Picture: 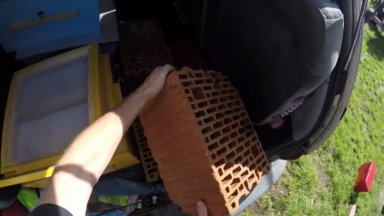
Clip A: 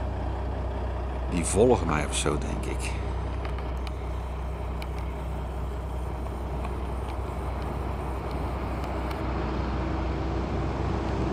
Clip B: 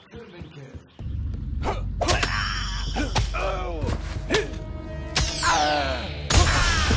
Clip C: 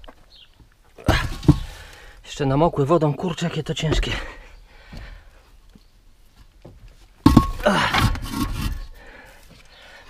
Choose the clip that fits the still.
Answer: C